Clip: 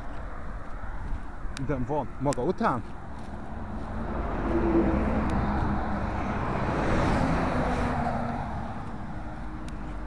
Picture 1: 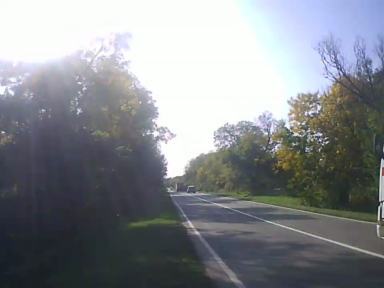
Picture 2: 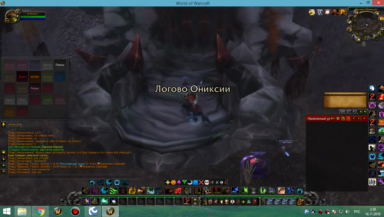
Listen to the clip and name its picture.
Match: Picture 1